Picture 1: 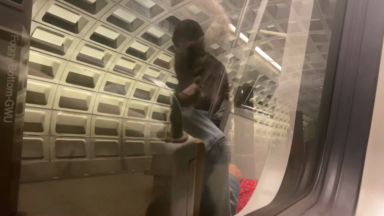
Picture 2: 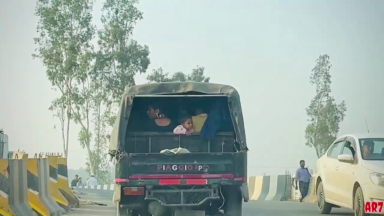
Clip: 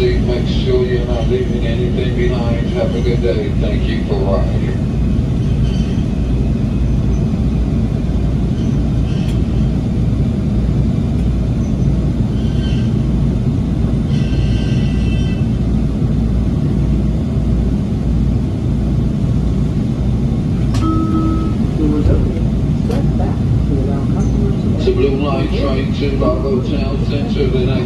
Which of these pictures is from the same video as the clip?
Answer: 1